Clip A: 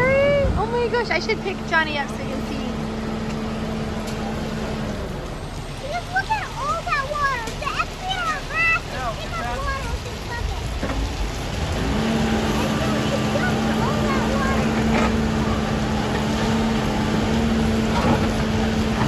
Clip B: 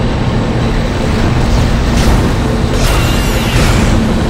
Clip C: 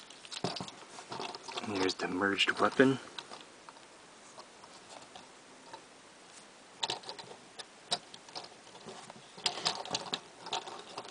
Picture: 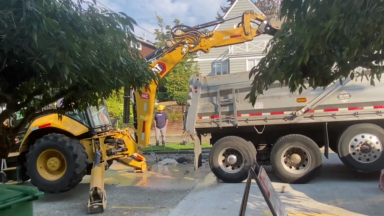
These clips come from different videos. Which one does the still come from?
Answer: A